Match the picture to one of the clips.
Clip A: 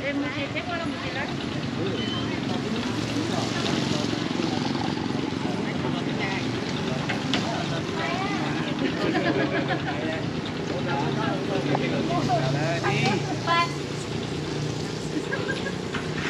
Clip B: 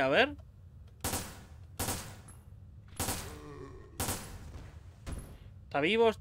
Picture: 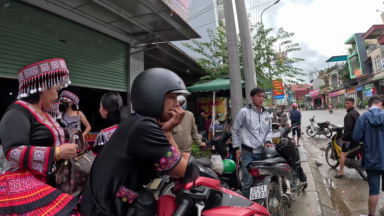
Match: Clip A